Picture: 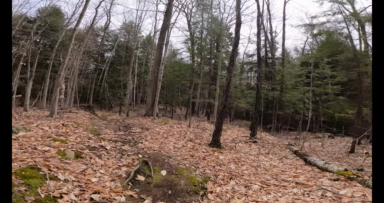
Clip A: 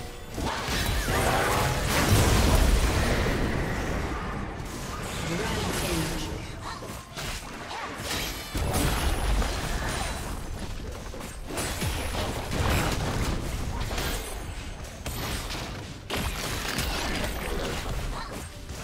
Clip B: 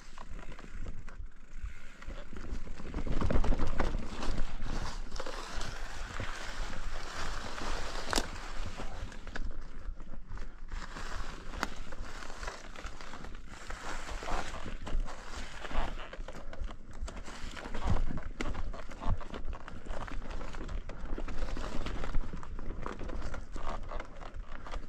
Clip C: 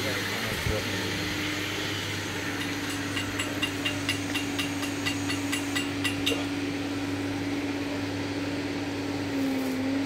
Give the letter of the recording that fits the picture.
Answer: B